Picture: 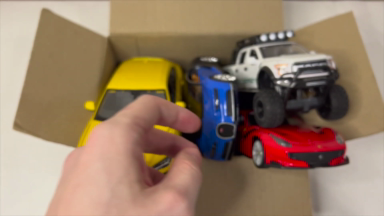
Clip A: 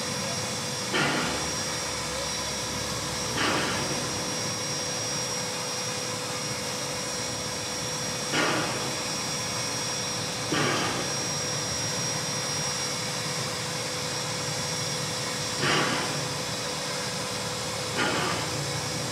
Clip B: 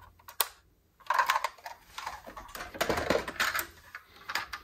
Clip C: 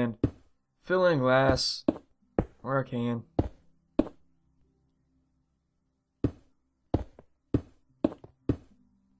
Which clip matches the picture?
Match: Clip B